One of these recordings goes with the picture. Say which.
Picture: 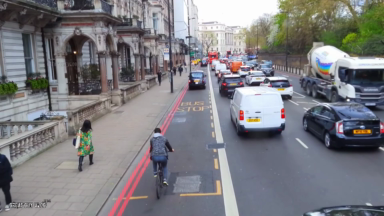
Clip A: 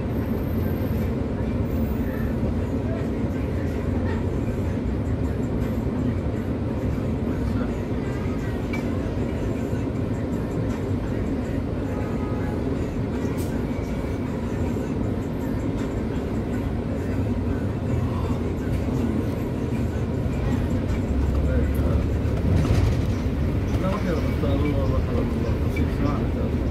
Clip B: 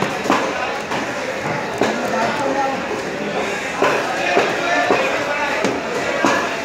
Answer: A